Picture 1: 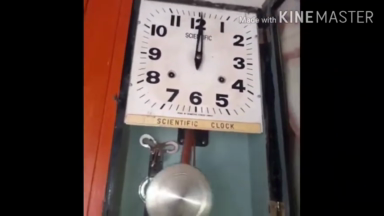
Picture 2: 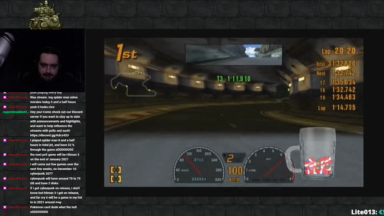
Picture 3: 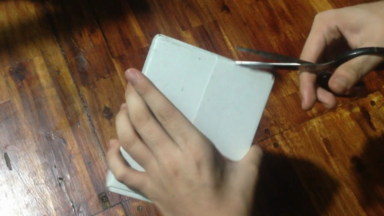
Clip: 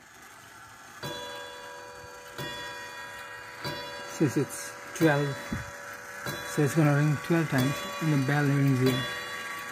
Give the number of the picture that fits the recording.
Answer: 1